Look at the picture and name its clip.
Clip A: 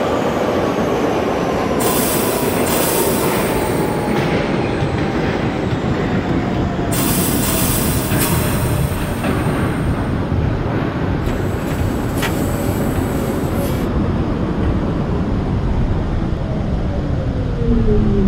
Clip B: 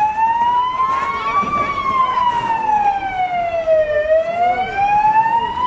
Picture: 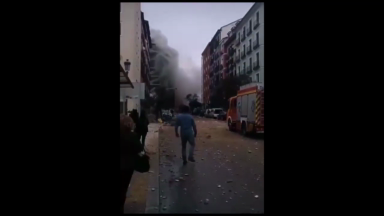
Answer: B